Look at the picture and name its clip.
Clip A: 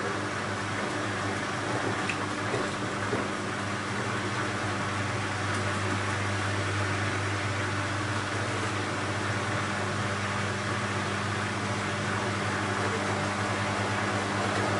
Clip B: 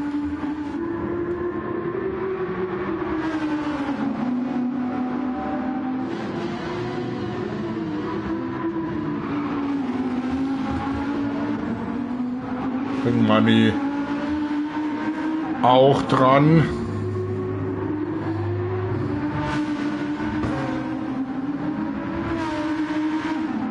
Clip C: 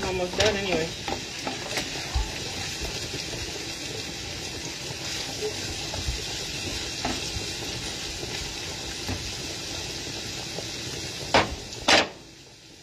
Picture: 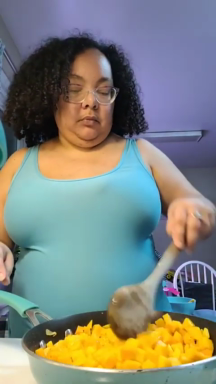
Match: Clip C